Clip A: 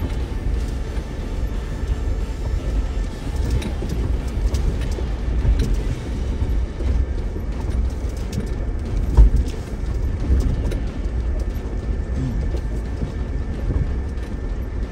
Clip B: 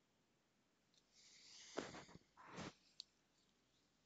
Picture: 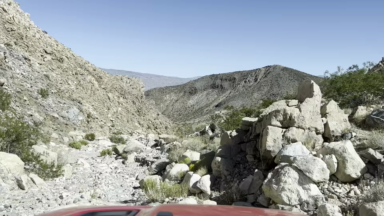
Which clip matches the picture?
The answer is A